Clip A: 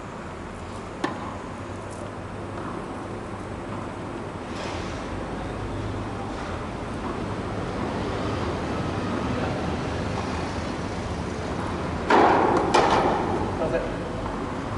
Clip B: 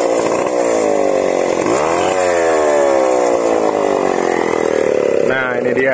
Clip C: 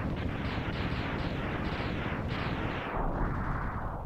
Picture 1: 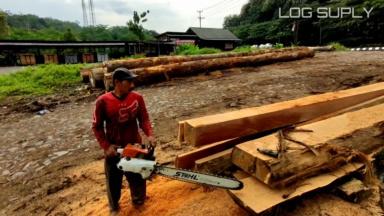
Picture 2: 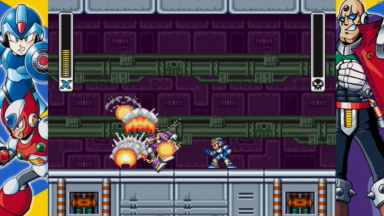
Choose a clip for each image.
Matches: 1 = B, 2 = C